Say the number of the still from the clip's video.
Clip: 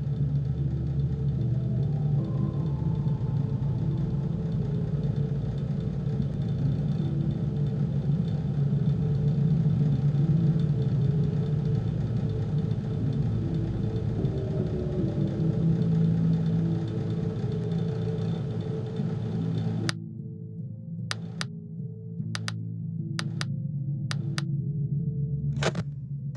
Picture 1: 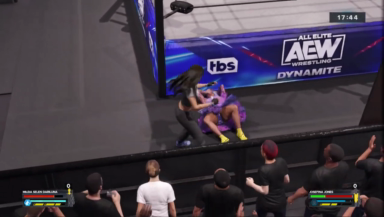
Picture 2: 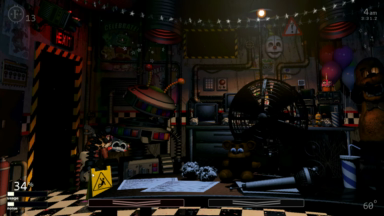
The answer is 2